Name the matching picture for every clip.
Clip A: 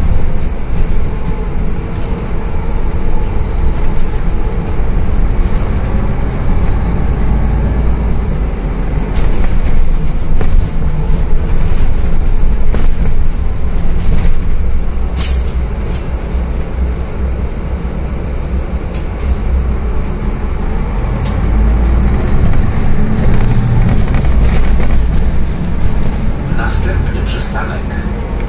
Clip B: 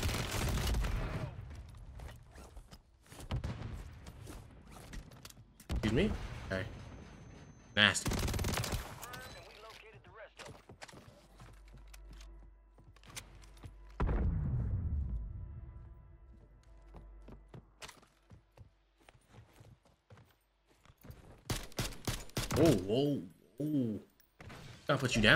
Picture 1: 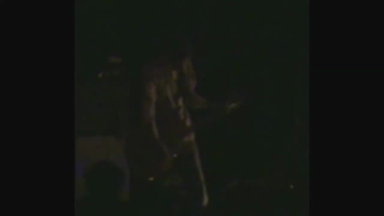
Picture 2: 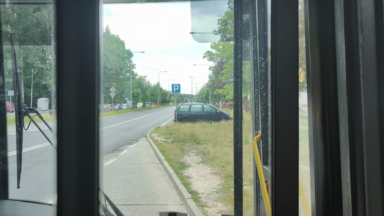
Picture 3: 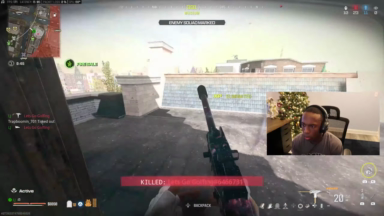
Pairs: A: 2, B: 3